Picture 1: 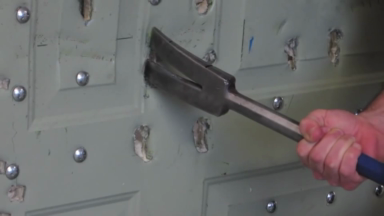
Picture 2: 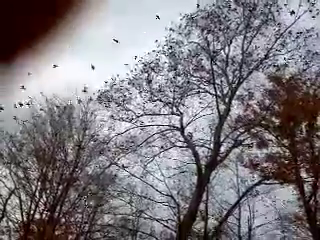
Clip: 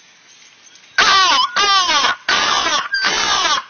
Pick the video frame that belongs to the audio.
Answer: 2